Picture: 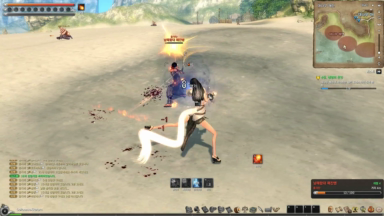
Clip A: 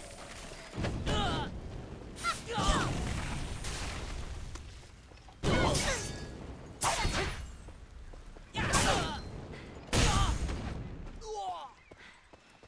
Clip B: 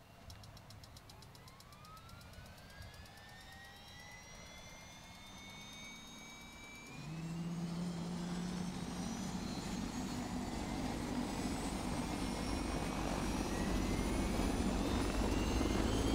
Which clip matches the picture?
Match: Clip A